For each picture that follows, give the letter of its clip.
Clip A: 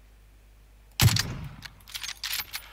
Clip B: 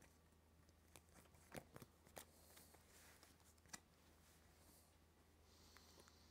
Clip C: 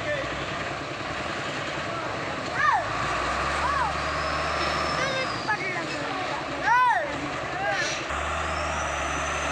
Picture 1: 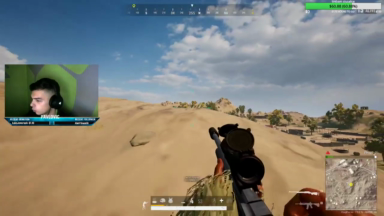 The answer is A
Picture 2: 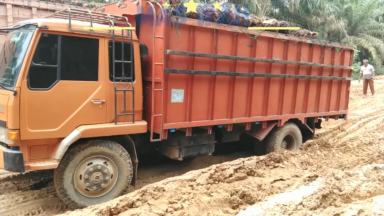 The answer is C